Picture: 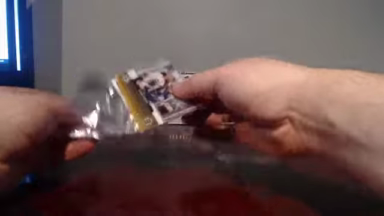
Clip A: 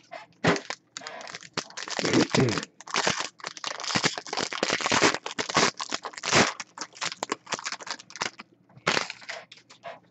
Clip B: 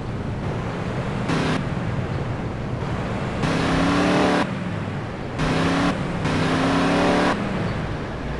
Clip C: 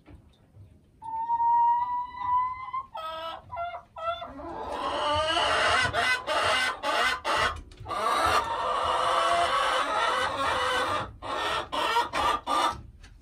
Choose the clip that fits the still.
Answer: A